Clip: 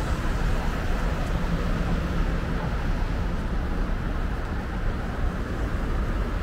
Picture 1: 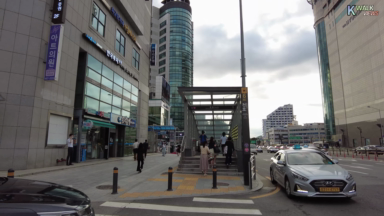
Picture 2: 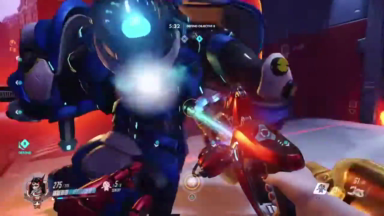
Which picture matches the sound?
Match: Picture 1